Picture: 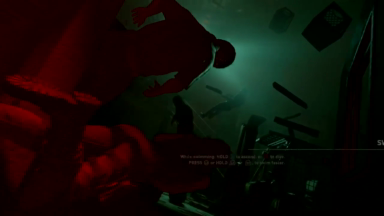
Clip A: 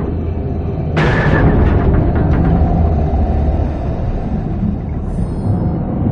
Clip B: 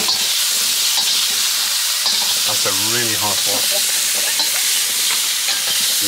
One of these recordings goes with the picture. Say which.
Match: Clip A